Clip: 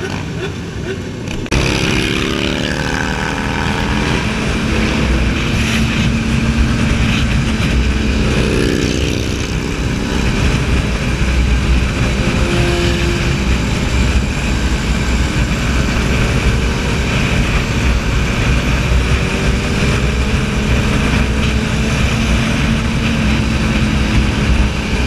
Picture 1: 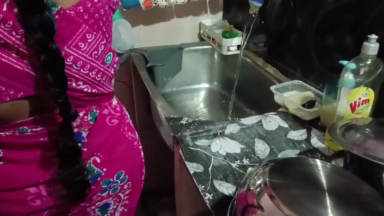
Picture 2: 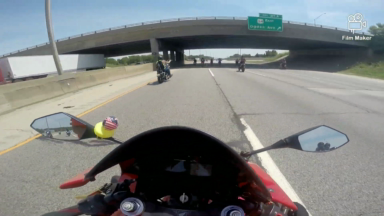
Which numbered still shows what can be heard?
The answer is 2